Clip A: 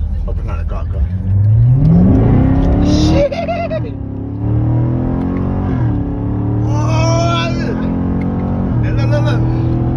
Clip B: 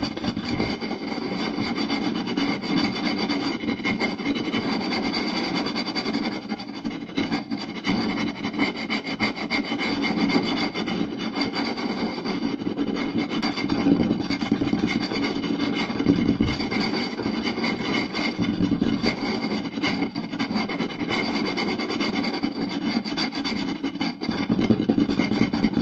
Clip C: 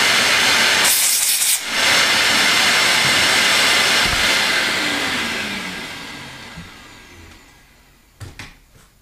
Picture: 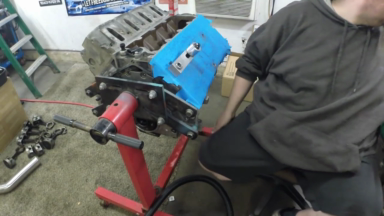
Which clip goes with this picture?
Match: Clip C